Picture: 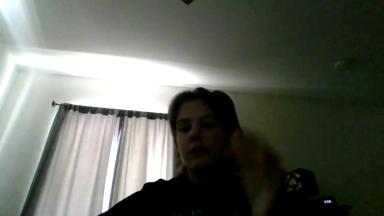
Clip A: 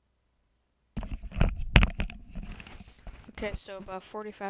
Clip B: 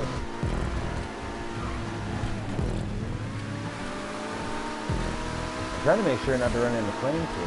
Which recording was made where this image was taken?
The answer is A